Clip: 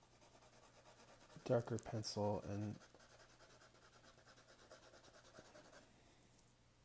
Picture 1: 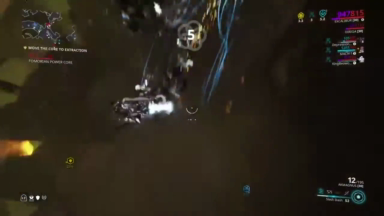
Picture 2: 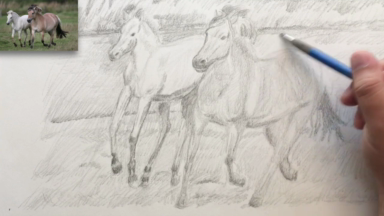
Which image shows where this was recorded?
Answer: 2